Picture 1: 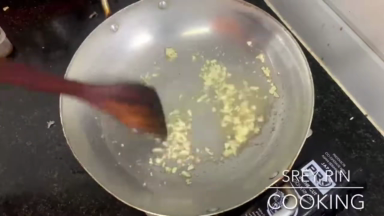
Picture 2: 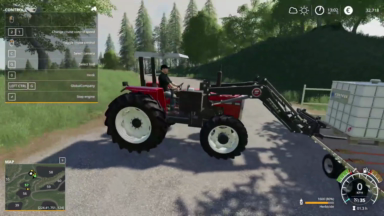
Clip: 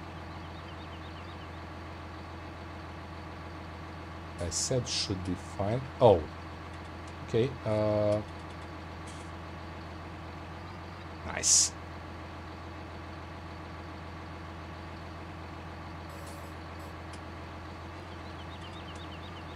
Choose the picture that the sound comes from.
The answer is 2